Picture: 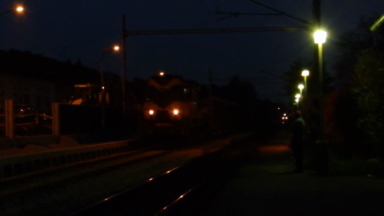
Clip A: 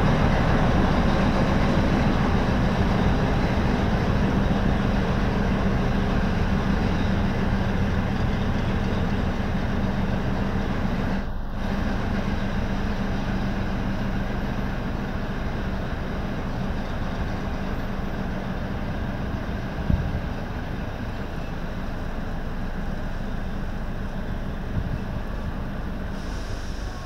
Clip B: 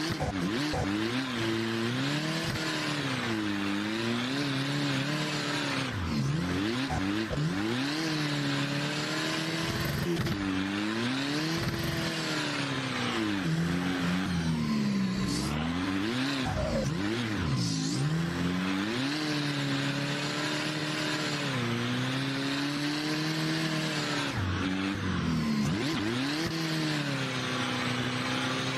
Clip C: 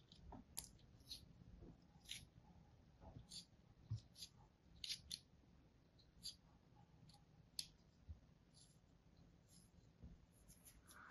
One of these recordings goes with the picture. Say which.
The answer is A